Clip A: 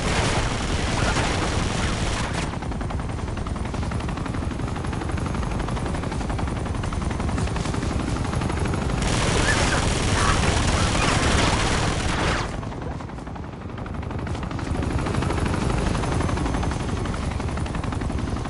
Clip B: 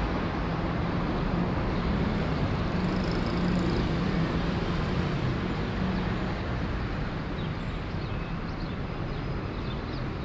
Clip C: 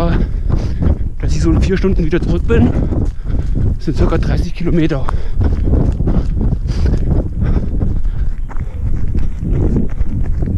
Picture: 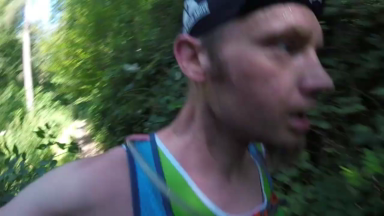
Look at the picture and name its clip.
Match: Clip C